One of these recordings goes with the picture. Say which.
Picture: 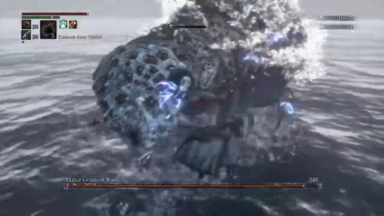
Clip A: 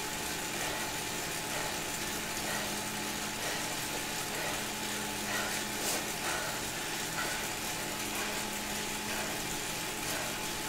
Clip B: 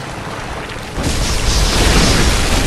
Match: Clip B